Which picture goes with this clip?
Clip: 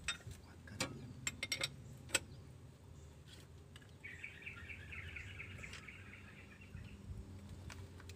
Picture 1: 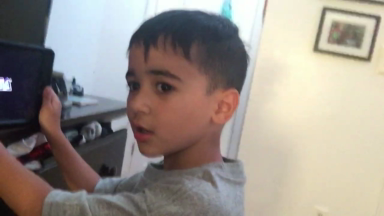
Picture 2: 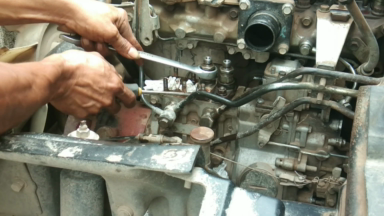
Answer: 2